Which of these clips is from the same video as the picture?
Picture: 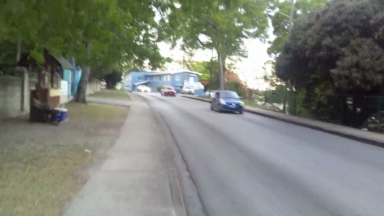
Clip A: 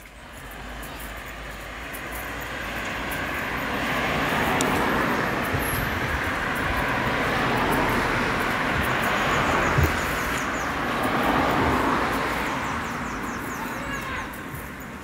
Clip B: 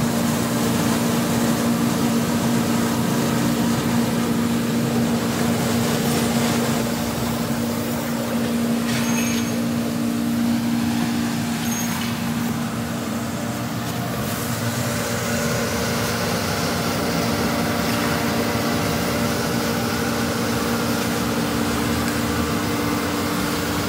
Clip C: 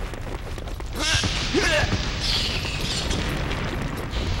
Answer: A